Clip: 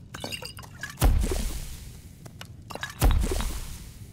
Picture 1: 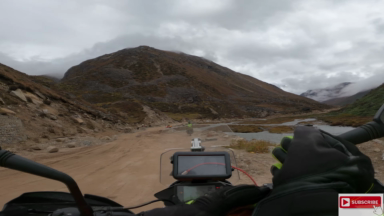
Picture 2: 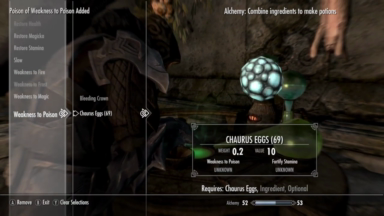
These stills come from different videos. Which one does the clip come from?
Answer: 2